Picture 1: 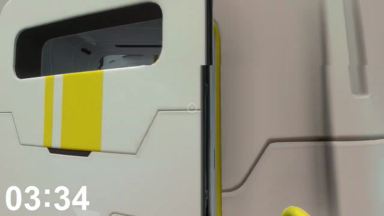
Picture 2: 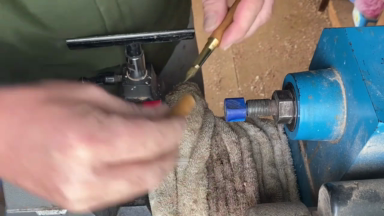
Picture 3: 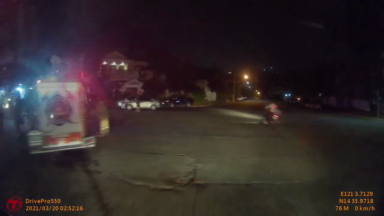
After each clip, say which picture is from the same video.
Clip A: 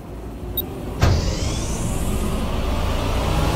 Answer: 1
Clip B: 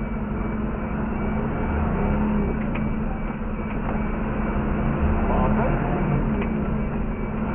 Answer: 3